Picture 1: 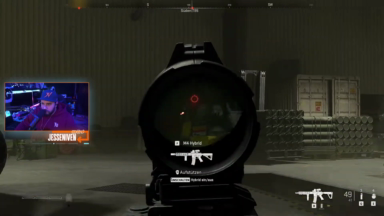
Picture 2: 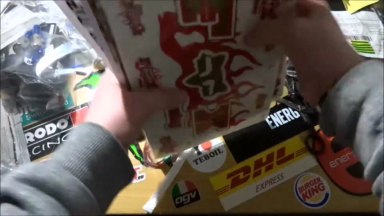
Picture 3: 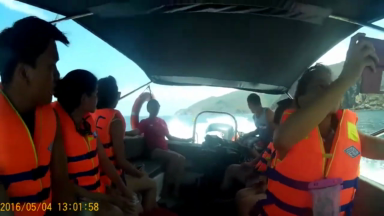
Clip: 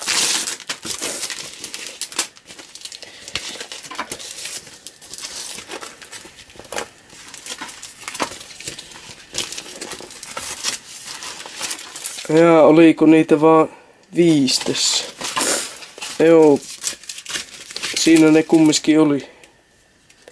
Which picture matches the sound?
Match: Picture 2